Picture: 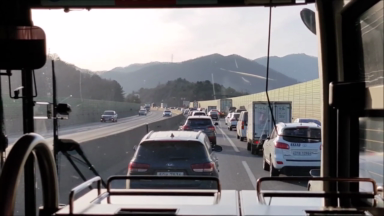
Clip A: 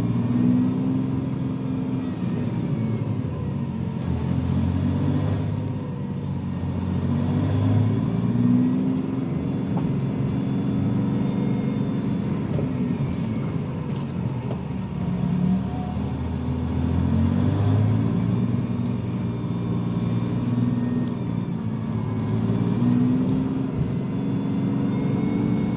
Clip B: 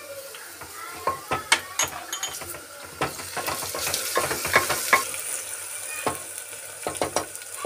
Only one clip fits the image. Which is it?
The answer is A